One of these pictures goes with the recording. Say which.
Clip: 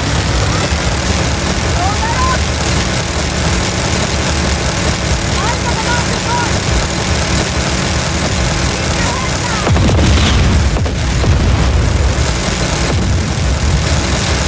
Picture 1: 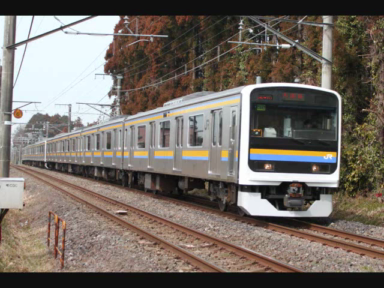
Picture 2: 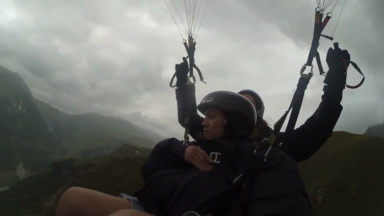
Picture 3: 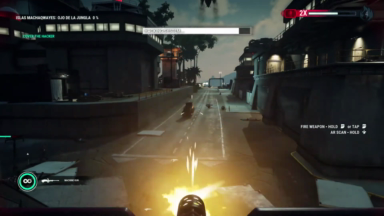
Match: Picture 3